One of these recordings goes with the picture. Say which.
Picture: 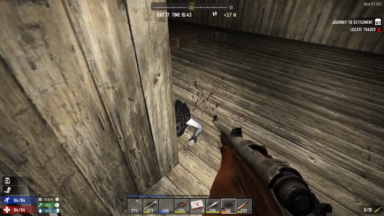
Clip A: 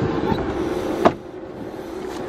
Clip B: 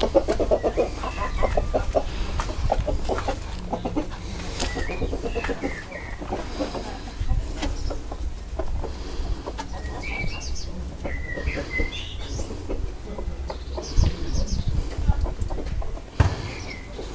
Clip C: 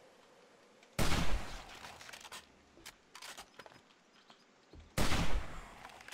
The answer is C